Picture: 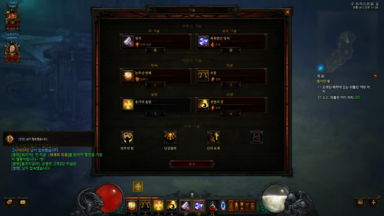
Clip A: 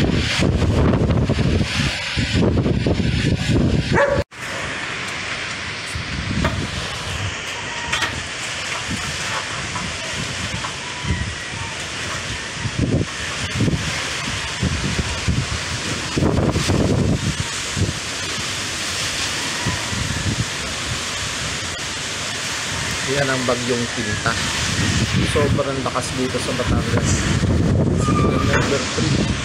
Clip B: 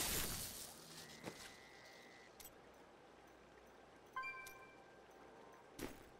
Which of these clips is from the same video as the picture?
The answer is B